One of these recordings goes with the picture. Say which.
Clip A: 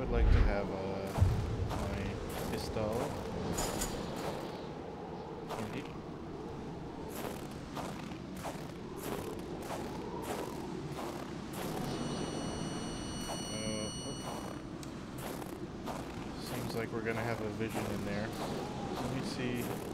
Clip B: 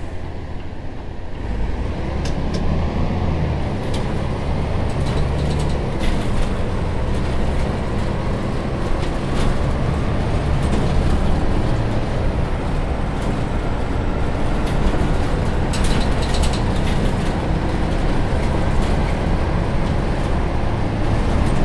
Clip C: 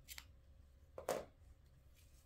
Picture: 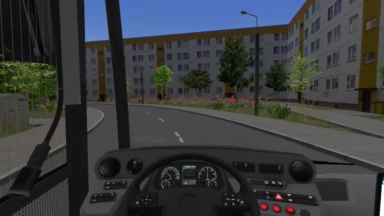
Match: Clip B